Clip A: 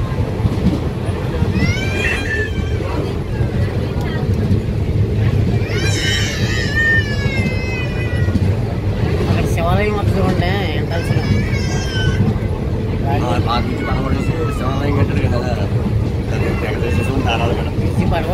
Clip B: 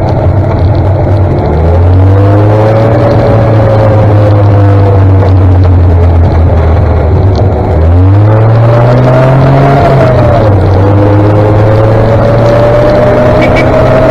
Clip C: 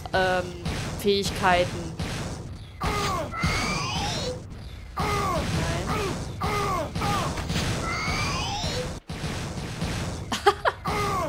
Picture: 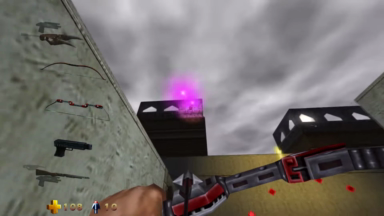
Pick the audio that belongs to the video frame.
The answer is C